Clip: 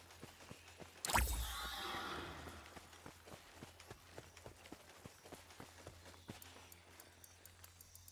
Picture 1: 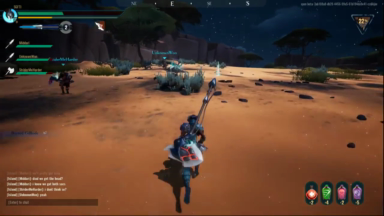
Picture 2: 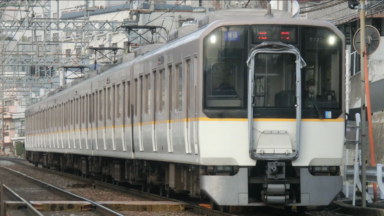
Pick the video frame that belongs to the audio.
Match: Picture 1